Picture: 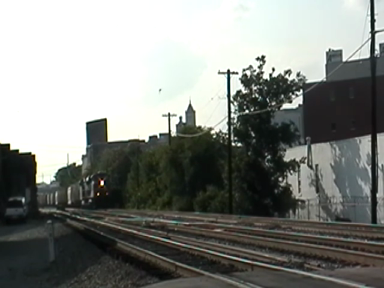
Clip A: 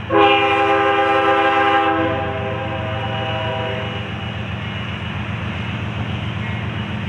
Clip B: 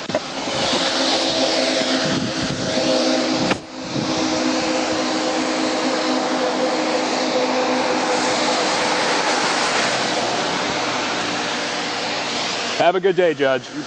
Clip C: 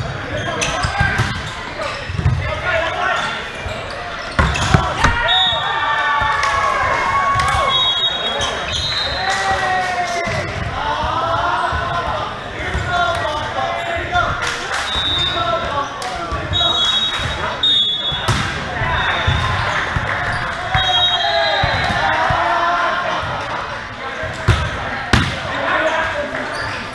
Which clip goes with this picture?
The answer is A